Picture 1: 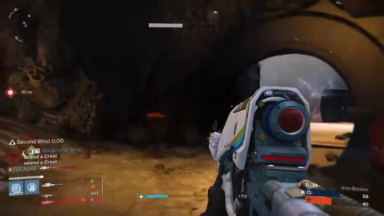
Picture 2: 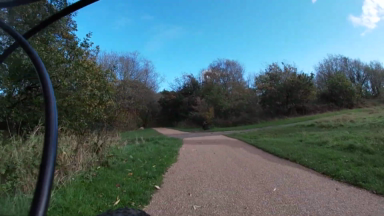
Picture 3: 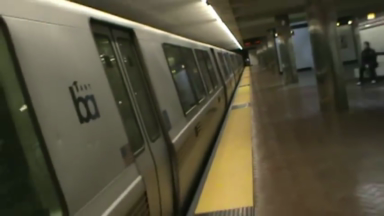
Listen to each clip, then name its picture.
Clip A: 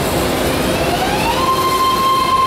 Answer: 3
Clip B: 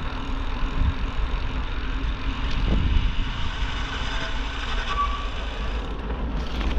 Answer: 2